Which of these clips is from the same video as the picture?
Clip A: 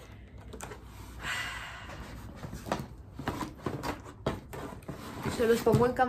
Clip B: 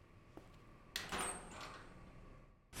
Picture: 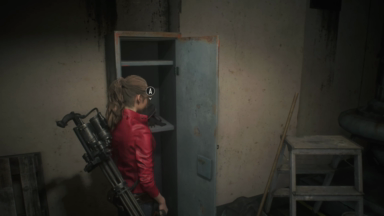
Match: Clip B